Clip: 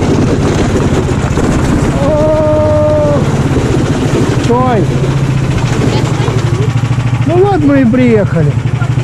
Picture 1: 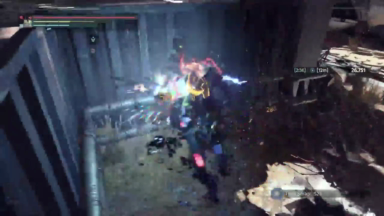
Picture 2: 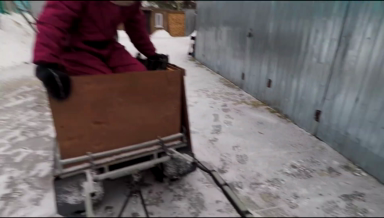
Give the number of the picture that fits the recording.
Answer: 2